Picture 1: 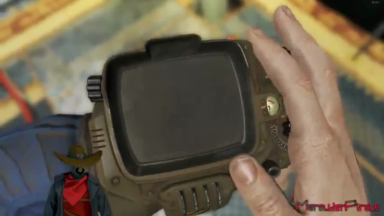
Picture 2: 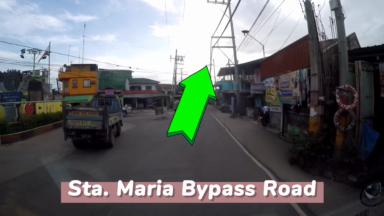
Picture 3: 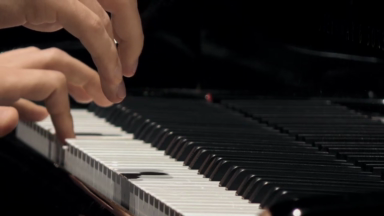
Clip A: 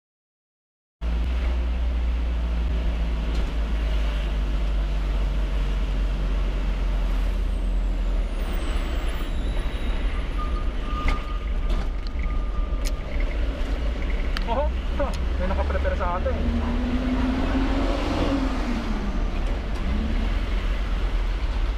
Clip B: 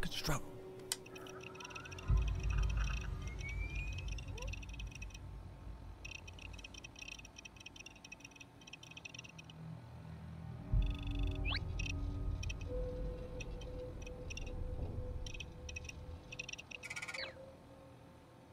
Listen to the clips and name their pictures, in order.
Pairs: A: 2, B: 1